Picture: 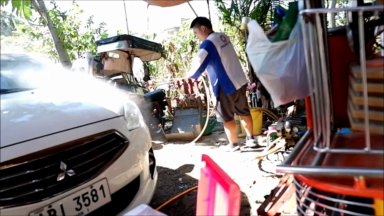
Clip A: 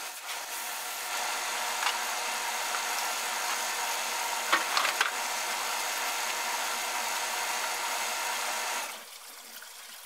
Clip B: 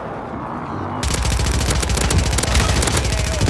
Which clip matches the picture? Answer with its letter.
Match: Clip A